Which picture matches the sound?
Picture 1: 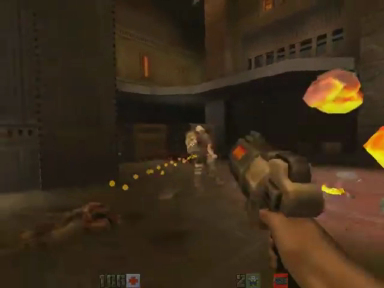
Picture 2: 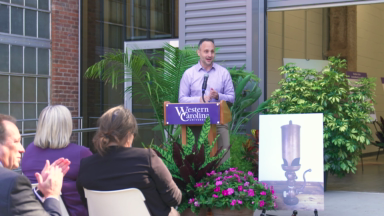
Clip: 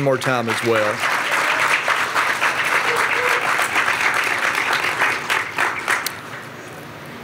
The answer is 2